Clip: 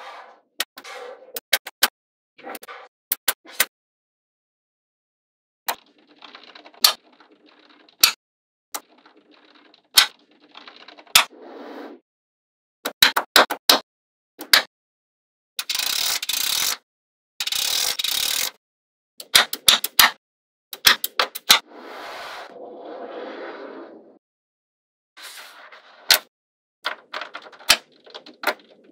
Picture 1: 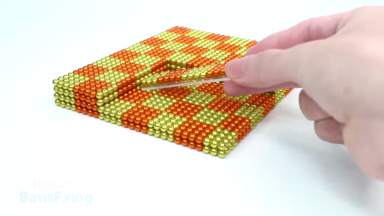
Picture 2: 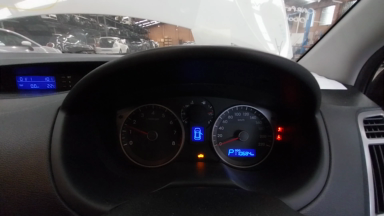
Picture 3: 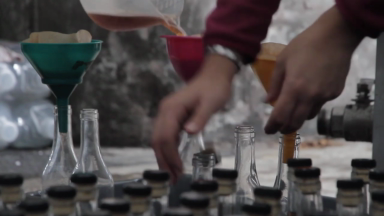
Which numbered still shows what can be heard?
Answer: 1